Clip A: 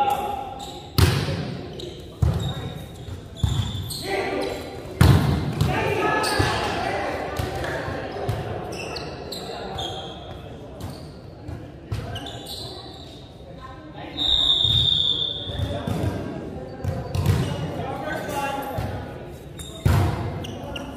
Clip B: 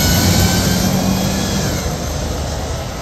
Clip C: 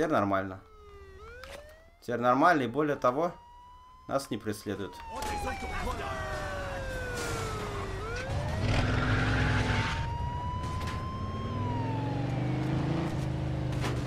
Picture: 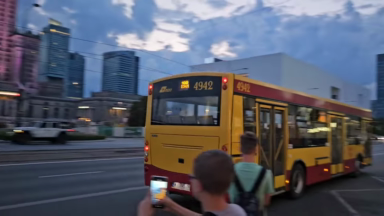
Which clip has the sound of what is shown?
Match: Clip B